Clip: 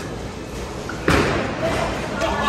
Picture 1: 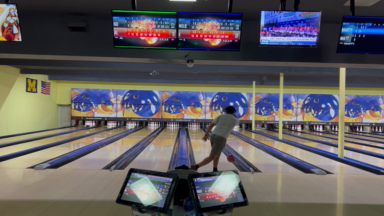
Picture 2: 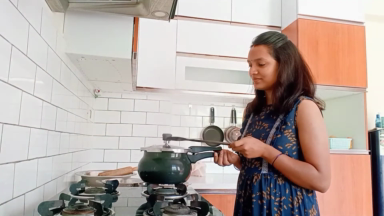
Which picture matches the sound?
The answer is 1